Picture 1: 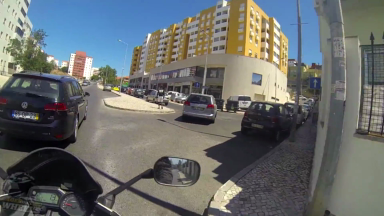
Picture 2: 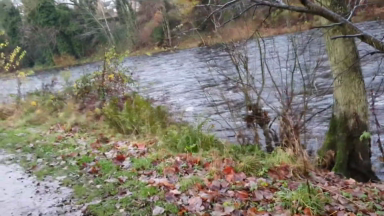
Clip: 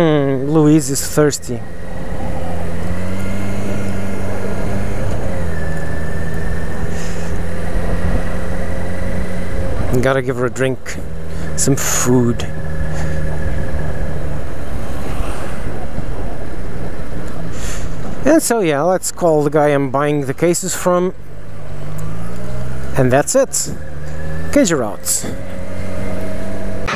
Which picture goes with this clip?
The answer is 1